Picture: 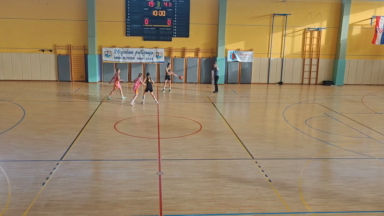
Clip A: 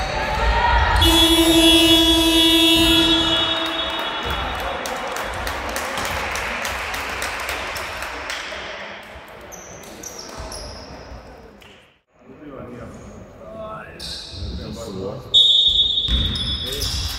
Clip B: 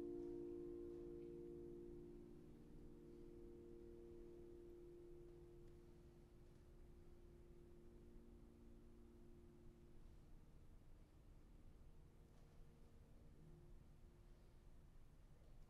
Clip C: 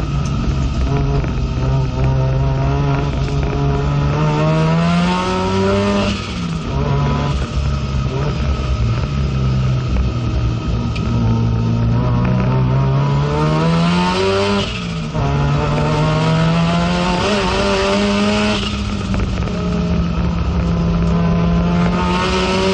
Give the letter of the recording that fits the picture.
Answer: A